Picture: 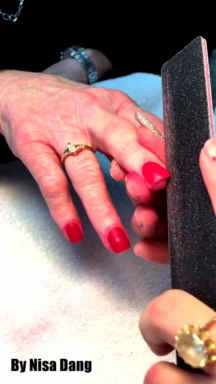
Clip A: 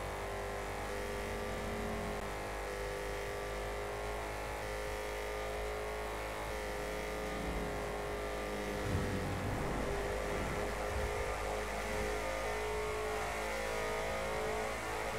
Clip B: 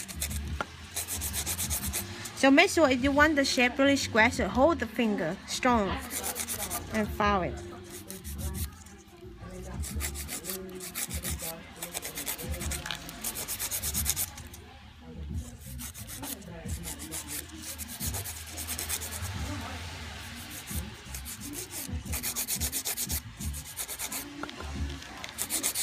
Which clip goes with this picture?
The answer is B